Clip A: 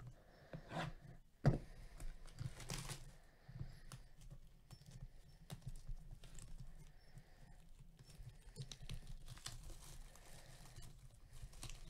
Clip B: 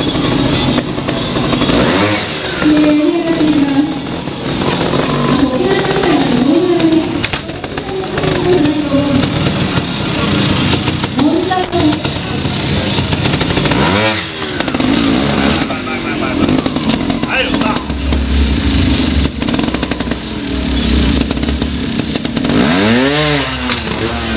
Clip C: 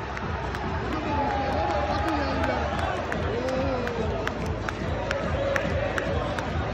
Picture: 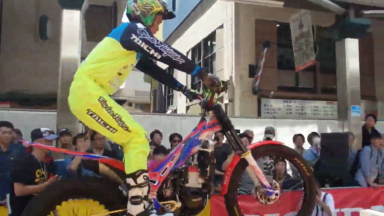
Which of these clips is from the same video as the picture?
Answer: B